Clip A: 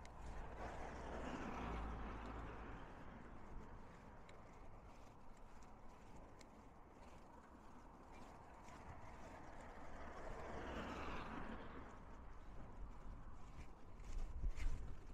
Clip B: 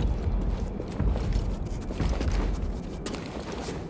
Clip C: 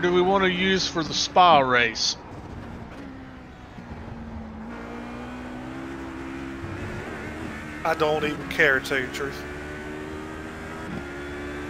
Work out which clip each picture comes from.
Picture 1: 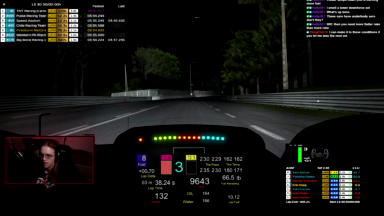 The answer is C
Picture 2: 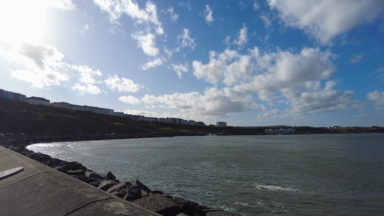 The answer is A